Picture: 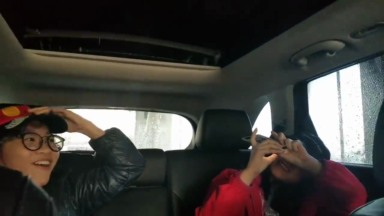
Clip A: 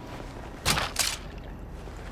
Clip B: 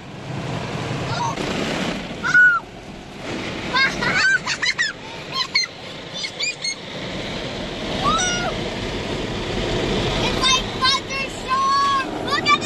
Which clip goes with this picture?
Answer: B